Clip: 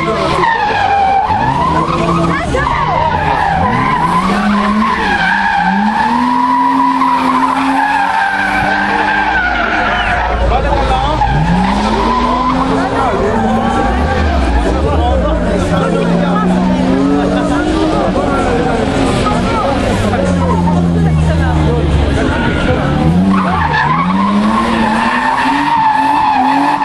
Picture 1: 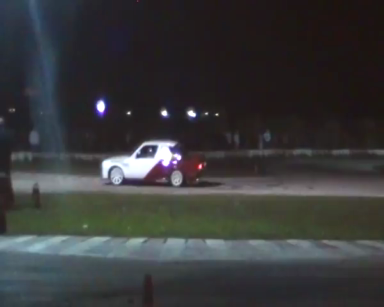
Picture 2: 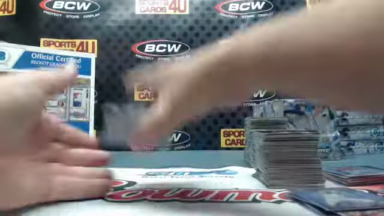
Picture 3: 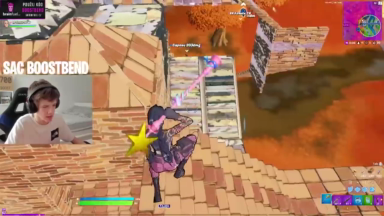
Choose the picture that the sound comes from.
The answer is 1